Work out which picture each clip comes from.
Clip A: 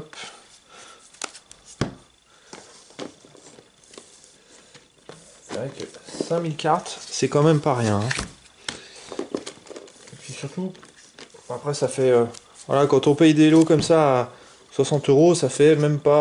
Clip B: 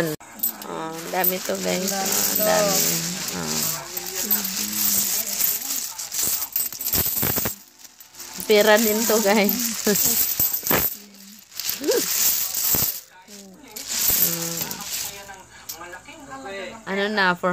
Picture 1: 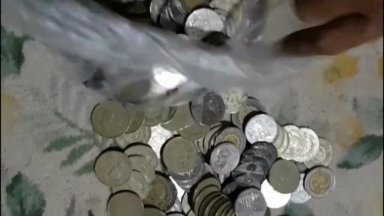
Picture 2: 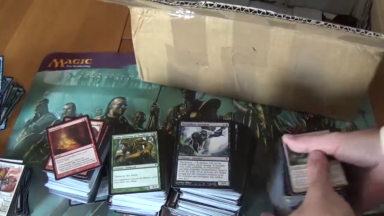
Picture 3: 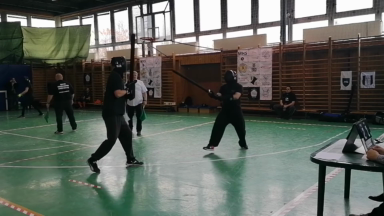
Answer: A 2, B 1